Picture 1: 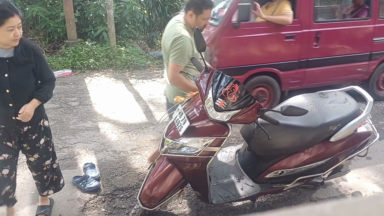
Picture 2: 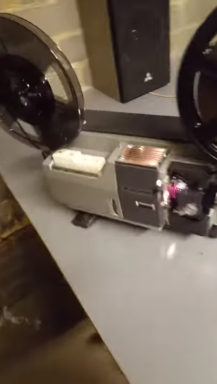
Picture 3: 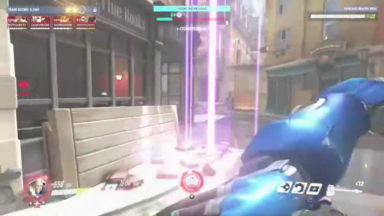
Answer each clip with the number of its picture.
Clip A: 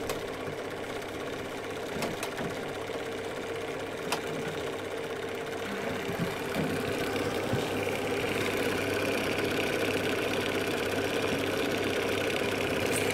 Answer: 2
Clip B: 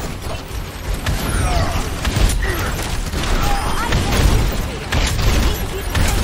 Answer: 3